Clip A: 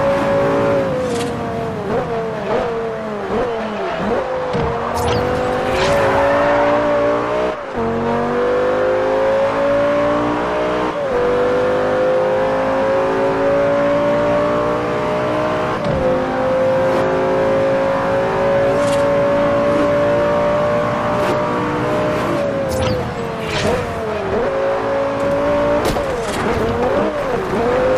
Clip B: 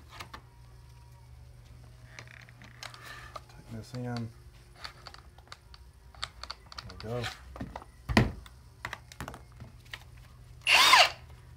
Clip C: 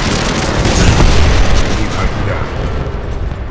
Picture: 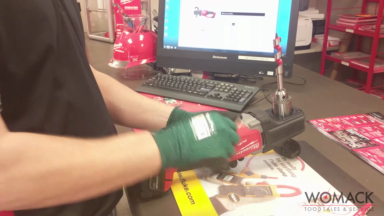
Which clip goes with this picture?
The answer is B